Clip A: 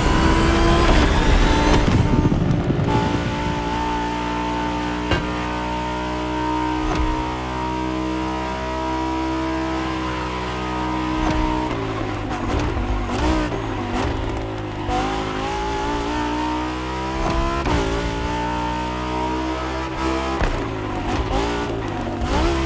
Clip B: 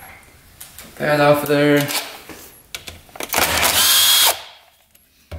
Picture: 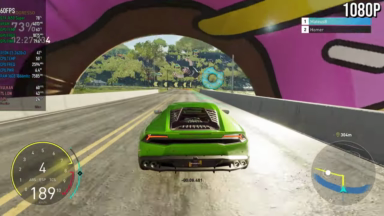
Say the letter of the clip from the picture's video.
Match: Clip A